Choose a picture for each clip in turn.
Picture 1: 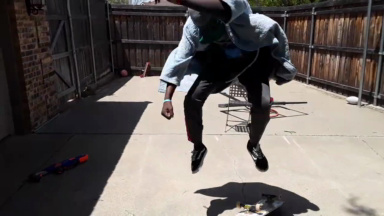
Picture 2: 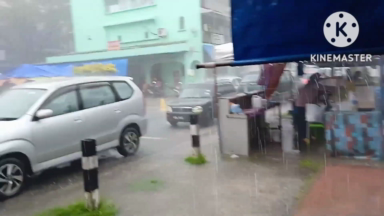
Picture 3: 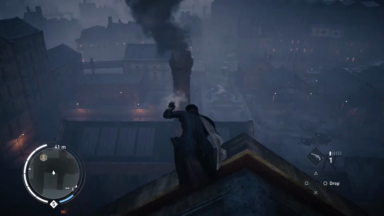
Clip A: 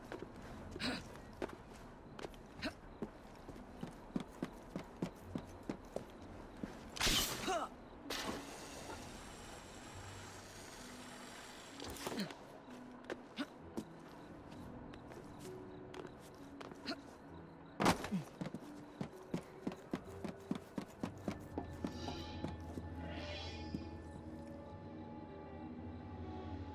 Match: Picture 3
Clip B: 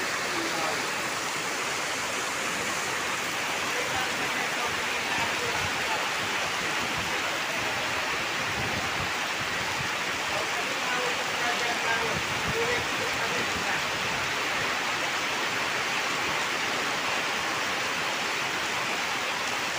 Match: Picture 2